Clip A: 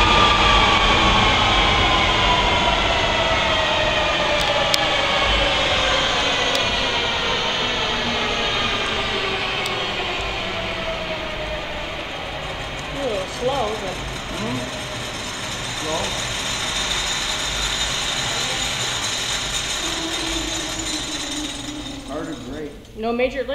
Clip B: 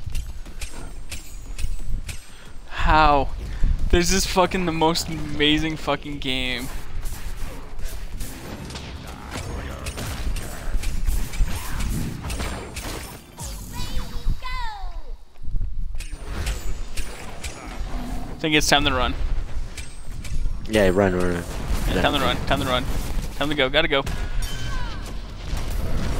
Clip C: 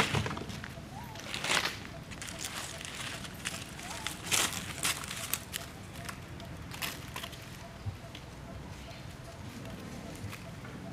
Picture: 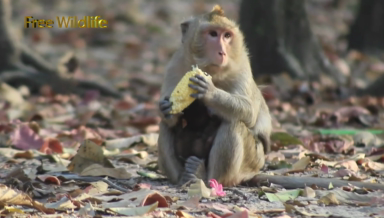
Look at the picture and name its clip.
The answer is C